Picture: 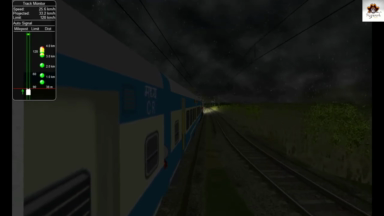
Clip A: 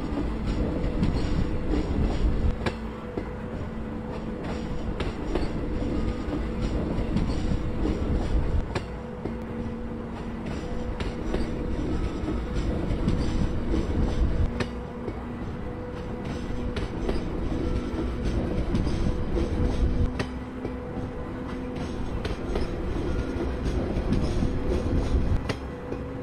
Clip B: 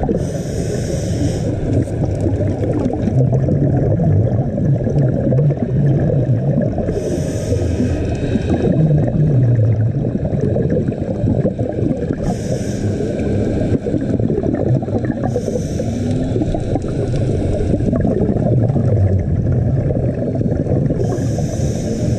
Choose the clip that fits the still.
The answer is A